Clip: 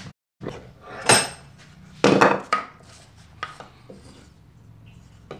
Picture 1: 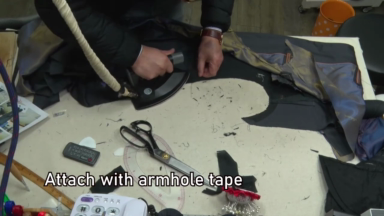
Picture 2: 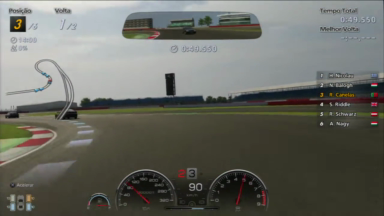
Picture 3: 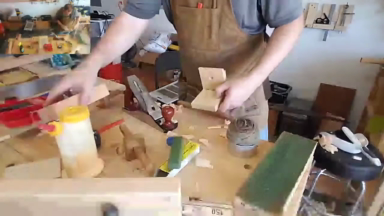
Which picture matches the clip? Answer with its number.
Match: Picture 3